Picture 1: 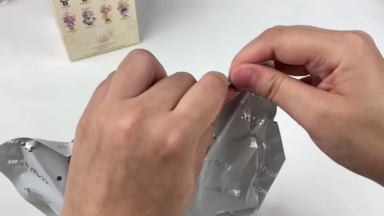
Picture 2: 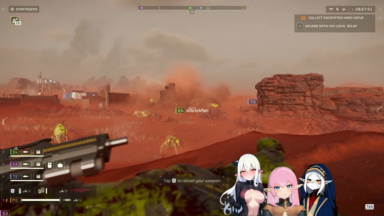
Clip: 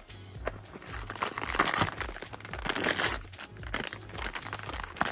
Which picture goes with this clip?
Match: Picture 1